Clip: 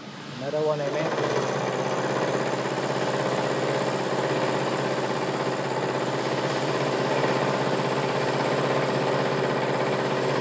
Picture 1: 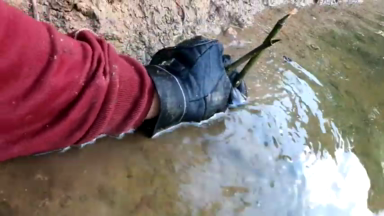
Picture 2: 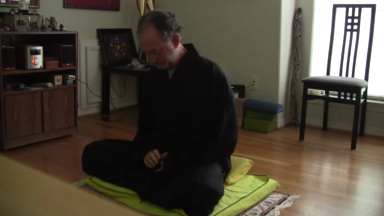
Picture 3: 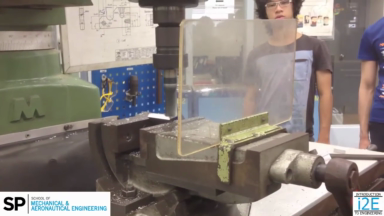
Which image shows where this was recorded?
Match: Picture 3